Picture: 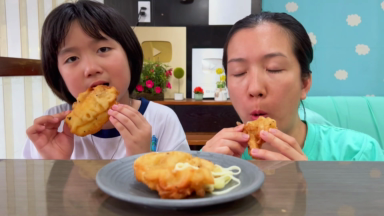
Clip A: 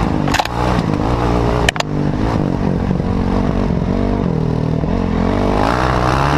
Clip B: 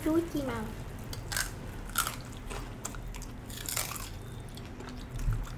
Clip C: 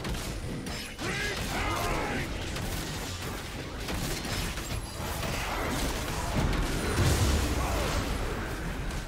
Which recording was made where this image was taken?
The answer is B